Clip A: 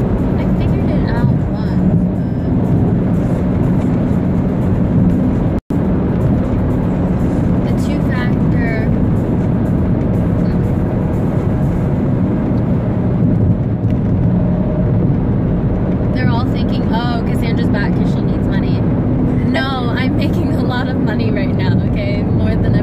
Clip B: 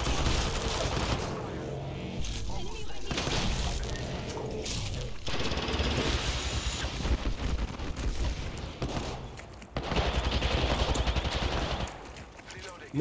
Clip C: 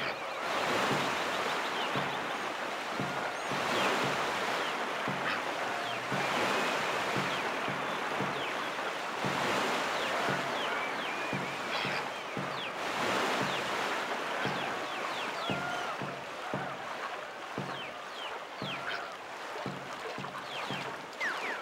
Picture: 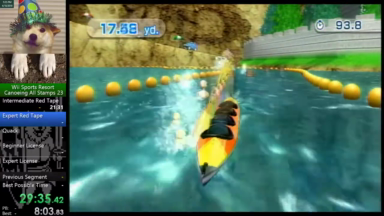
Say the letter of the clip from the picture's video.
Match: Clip C